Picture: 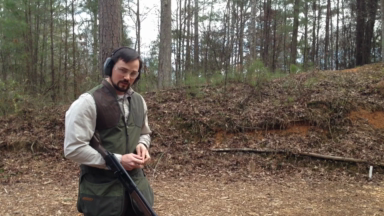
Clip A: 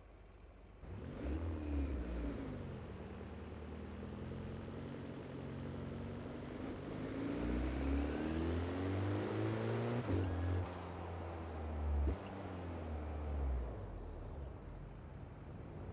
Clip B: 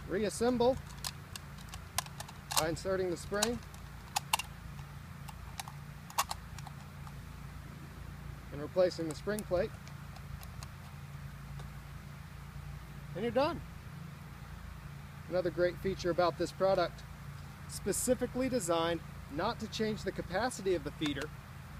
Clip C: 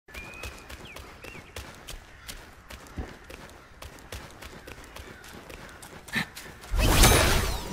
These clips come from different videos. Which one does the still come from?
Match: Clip B